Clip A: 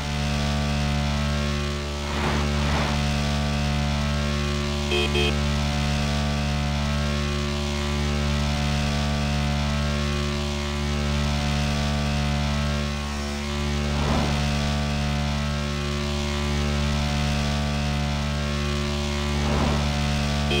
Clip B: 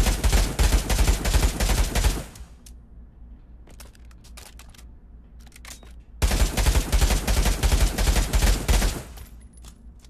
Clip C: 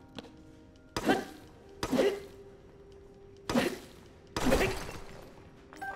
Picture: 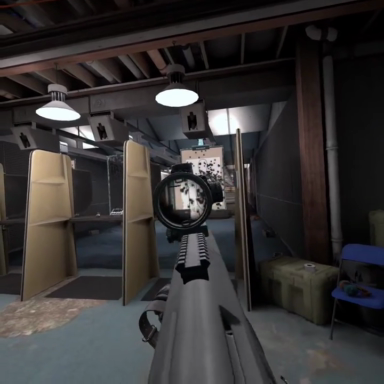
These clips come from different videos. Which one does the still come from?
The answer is B